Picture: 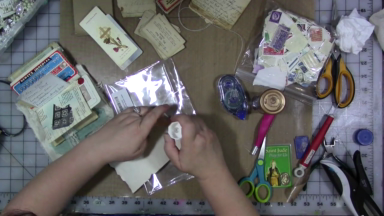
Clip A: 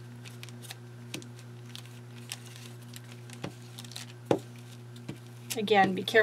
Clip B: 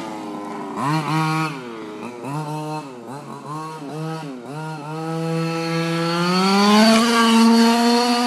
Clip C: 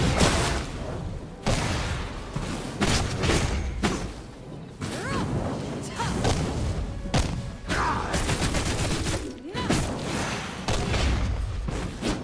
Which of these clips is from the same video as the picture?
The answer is A